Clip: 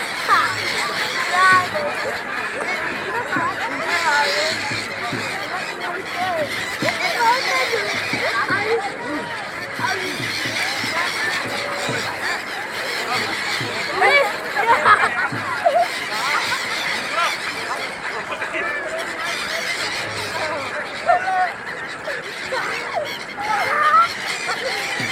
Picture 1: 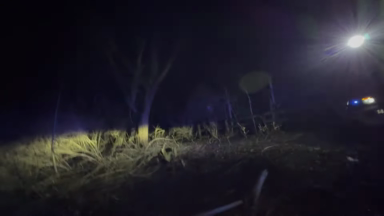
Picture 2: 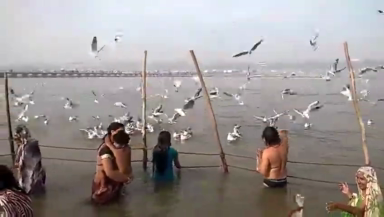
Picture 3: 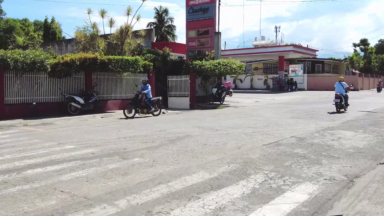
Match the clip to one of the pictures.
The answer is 2